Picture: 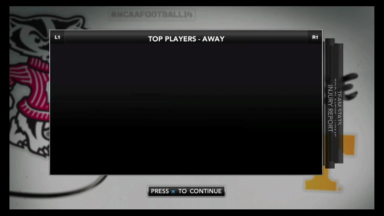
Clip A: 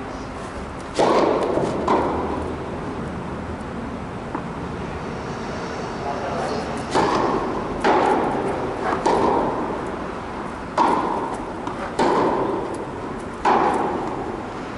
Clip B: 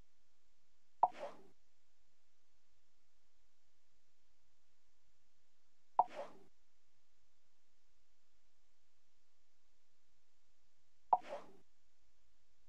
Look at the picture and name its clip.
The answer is B